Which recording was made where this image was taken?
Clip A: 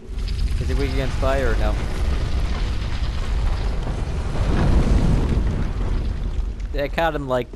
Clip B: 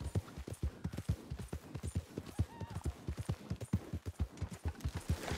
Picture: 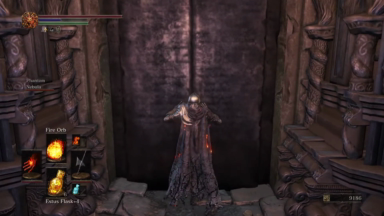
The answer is A